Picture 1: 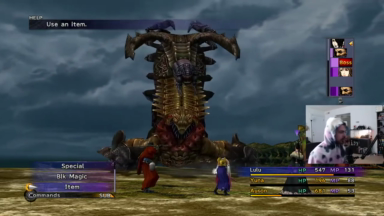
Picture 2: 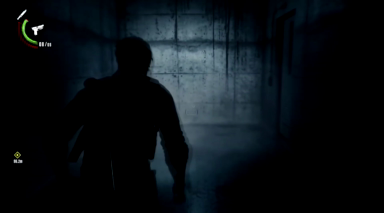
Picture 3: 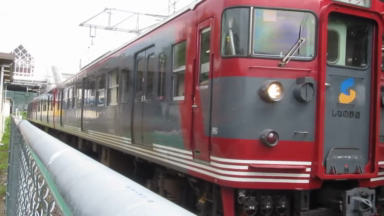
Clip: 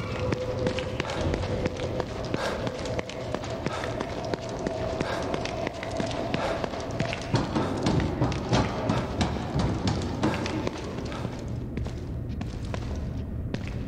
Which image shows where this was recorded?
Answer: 2